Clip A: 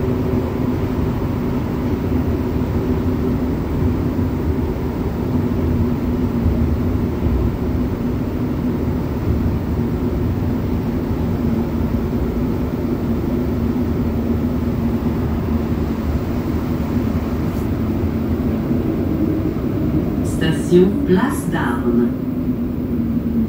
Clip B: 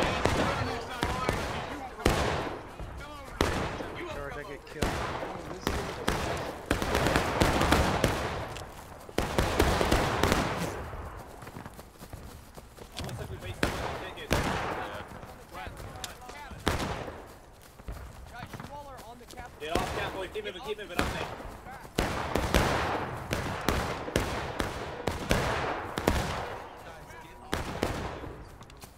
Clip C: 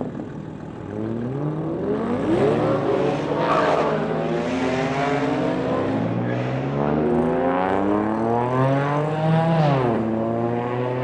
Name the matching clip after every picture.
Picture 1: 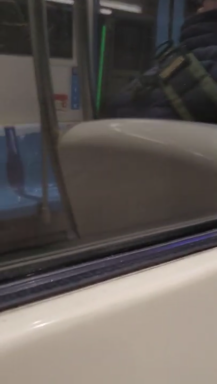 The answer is A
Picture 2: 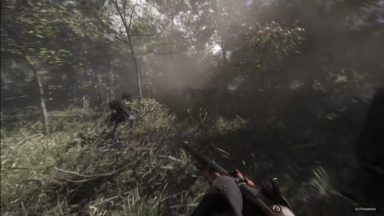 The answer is B